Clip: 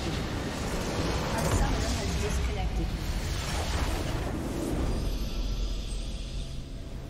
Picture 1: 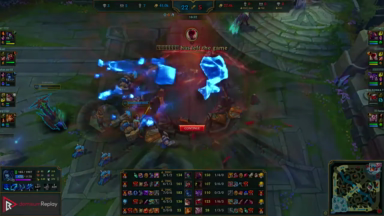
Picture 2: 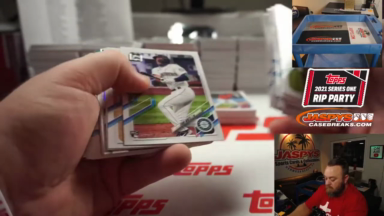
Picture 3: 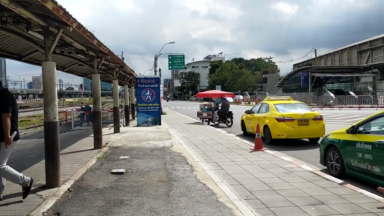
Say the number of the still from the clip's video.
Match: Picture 1